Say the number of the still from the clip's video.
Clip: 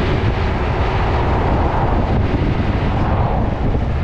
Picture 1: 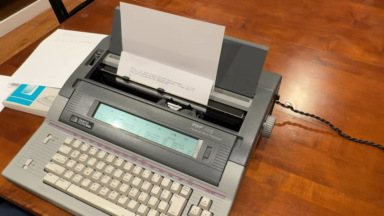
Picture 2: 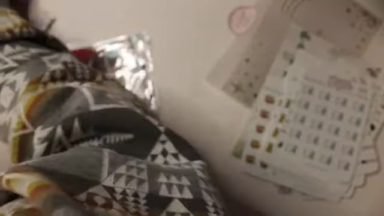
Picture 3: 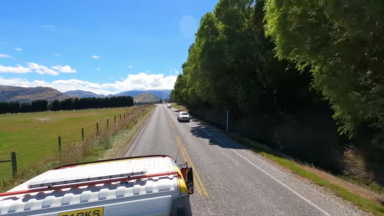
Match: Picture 3